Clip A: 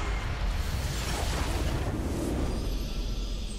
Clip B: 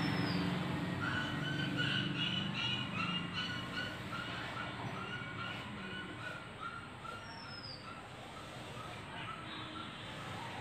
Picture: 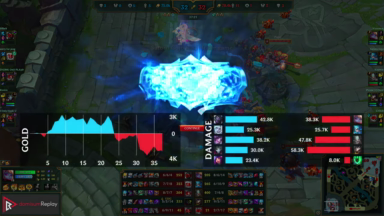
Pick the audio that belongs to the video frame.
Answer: A